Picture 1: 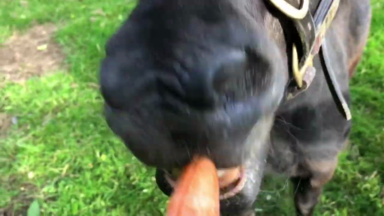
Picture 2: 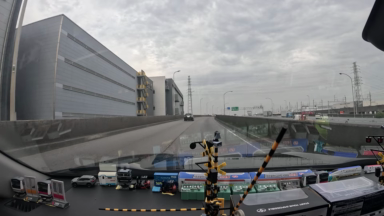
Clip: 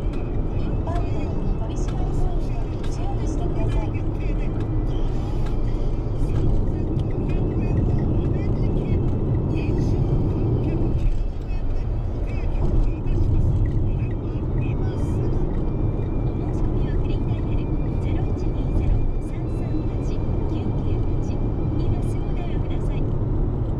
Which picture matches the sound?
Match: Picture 2